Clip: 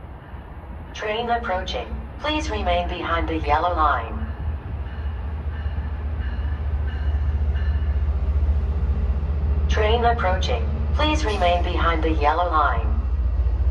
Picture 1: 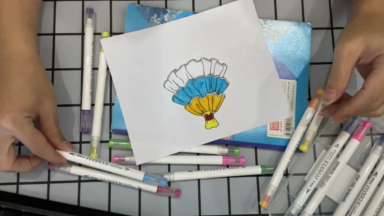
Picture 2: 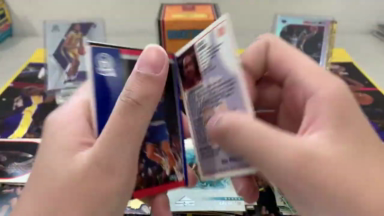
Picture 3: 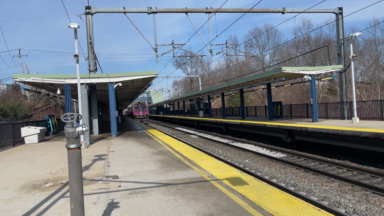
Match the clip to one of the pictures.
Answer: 3